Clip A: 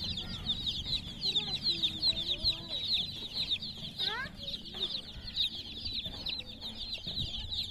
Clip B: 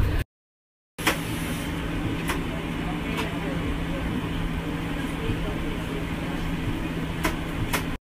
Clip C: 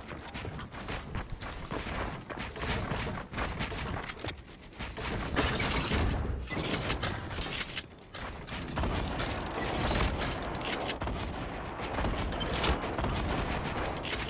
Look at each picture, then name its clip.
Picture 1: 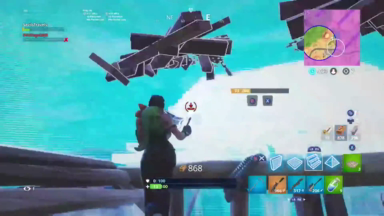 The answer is C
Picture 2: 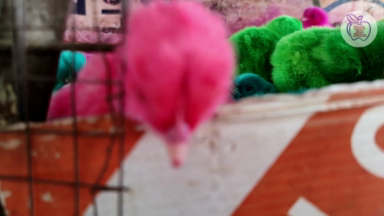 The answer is A